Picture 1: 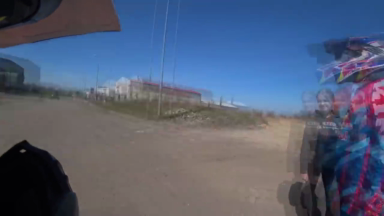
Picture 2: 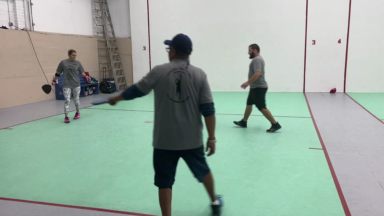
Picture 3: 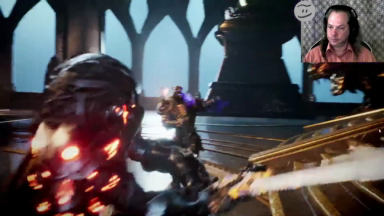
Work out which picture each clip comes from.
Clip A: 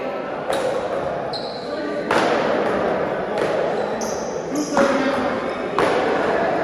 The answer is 2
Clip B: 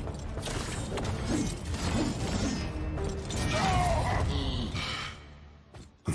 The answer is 3